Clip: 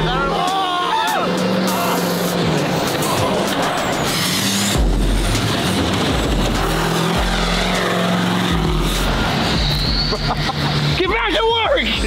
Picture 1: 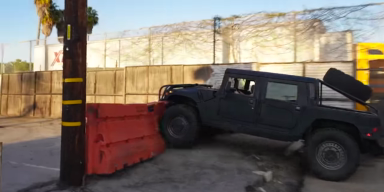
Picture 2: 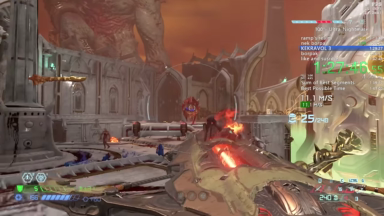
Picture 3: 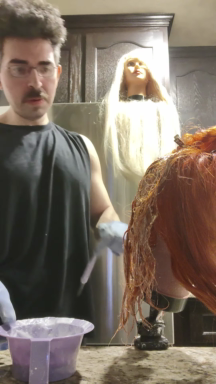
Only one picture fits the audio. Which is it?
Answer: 1